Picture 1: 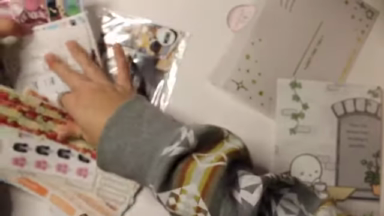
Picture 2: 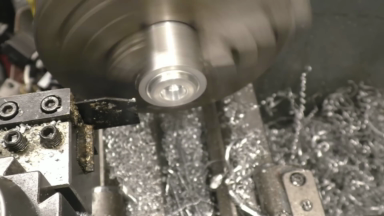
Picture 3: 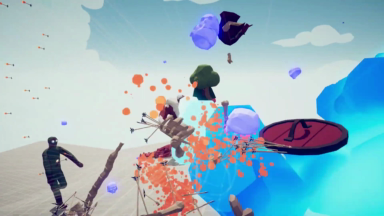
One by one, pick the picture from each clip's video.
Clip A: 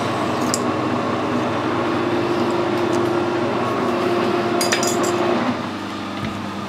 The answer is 2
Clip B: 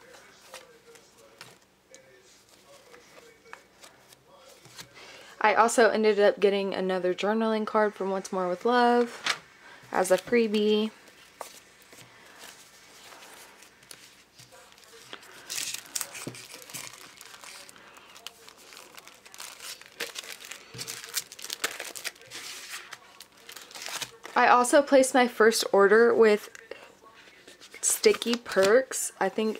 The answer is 1